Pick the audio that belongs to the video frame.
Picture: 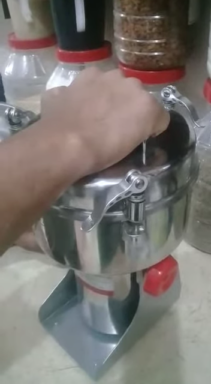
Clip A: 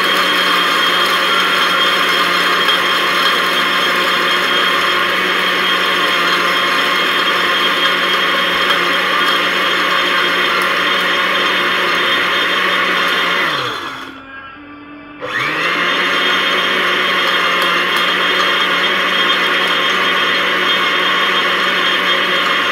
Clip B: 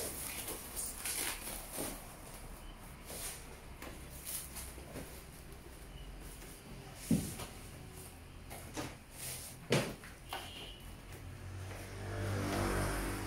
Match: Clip A